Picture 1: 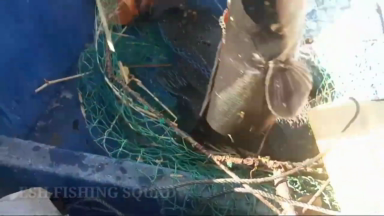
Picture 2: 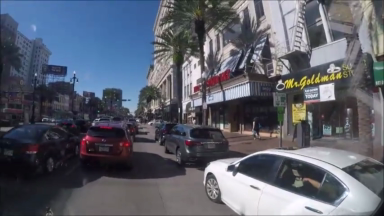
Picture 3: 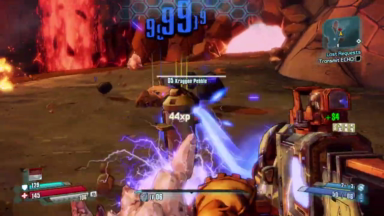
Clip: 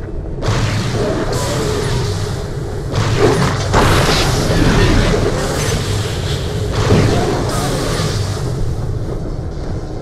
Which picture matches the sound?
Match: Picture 3